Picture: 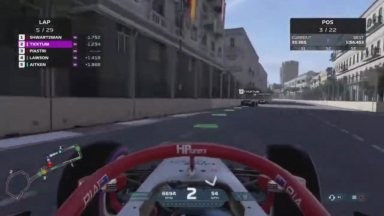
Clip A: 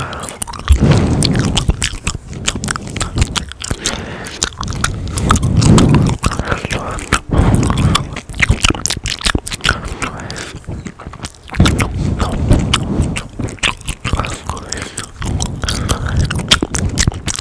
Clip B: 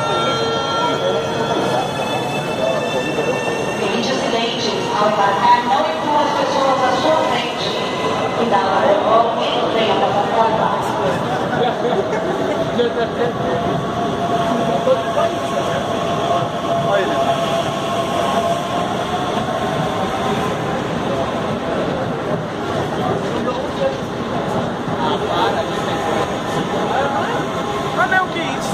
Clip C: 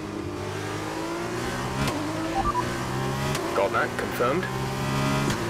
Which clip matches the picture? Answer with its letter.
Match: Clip C